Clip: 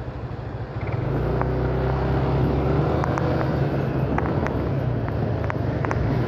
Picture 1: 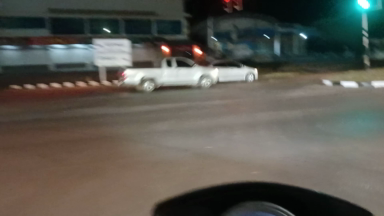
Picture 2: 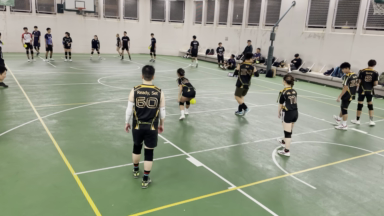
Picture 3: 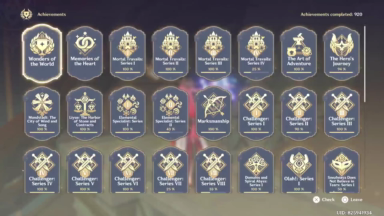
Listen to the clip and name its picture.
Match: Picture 1